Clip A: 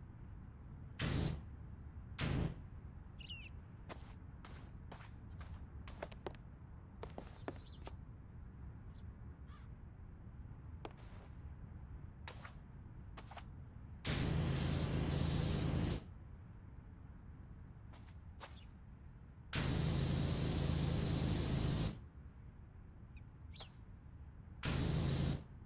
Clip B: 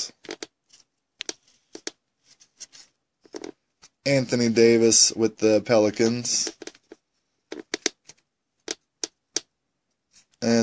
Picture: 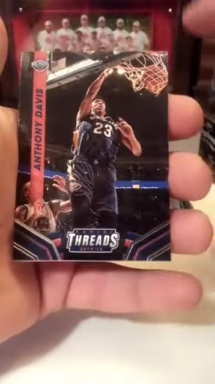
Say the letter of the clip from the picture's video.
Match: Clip B